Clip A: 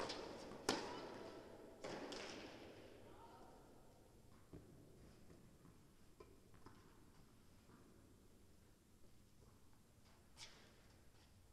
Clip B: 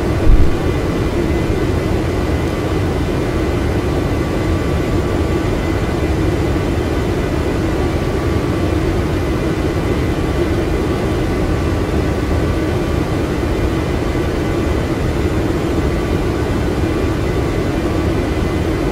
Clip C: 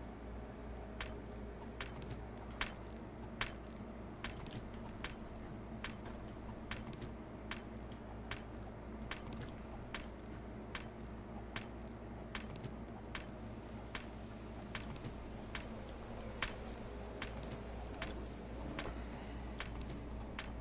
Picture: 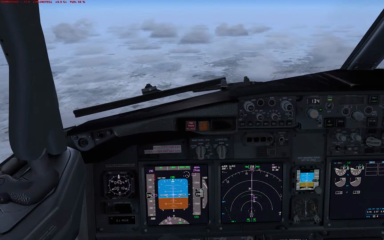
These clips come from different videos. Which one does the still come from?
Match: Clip B